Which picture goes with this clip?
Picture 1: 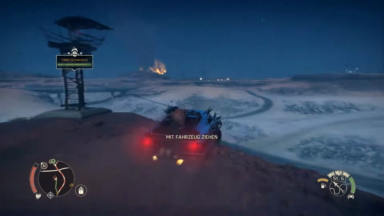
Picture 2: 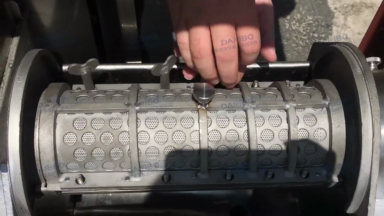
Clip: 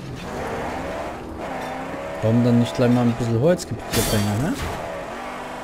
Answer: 1